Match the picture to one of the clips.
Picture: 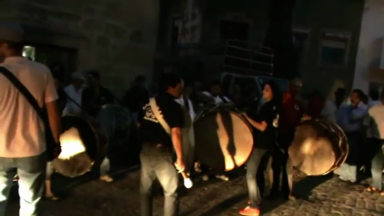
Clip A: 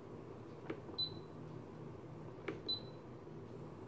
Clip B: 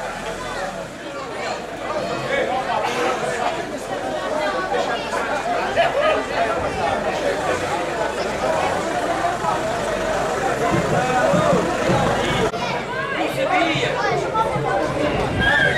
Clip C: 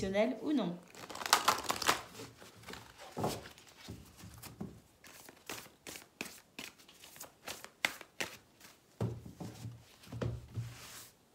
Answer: B